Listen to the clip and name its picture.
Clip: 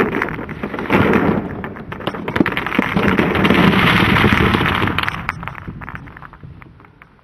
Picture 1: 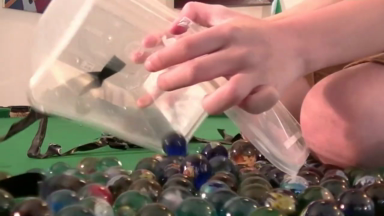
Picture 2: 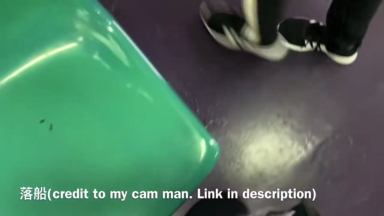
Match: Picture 1